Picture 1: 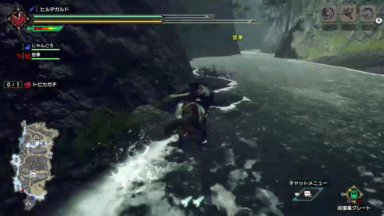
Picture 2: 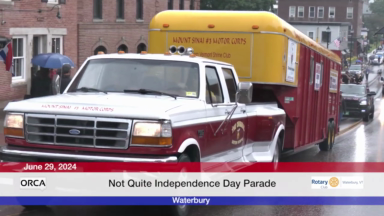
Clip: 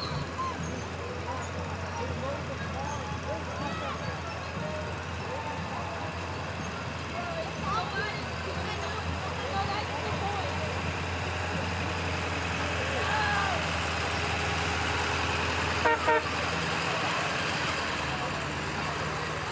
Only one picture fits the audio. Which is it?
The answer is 2